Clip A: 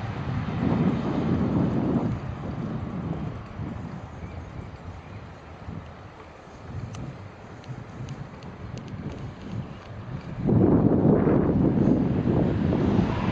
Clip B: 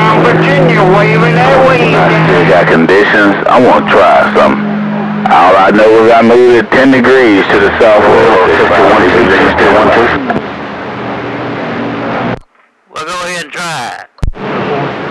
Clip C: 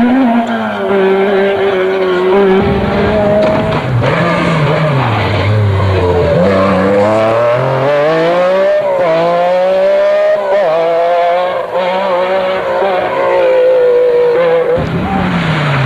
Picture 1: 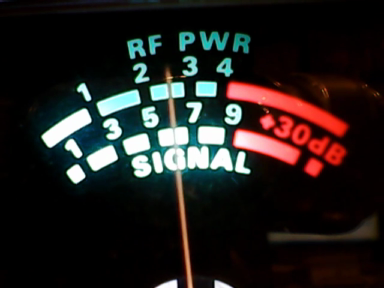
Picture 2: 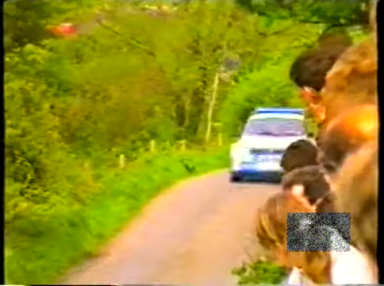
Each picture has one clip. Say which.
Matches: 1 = B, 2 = C